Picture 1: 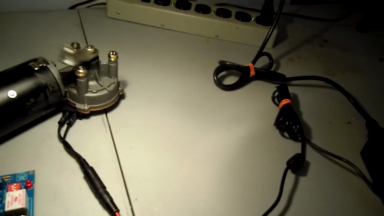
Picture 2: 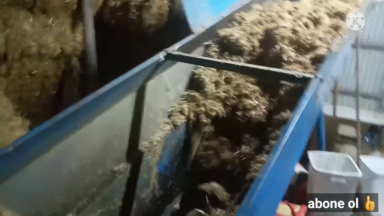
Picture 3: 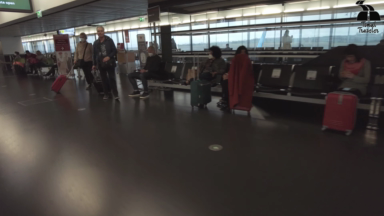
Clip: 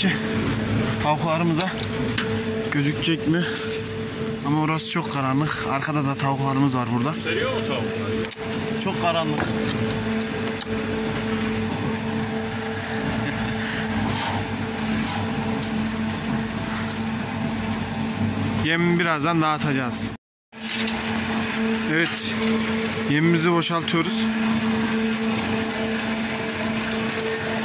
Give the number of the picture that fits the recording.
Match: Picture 2